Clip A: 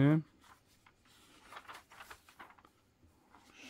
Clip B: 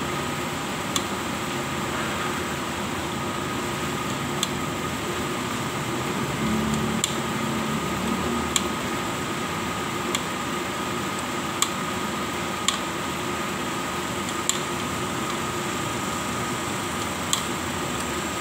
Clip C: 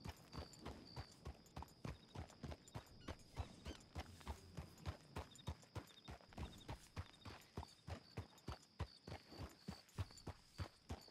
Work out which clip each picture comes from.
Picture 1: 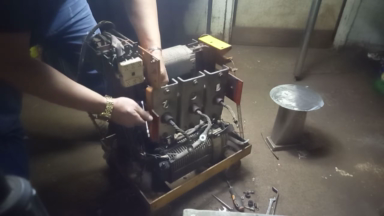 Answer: B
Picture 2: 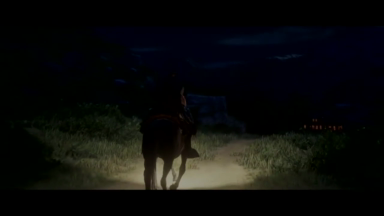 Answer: C